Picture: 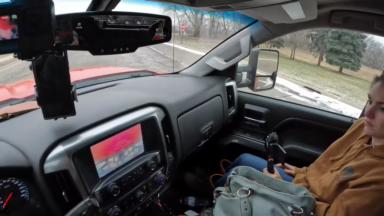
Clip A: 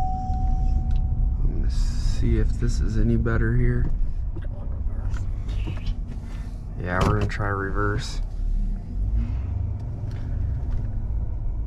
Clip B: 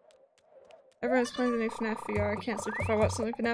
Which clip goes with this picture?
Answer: A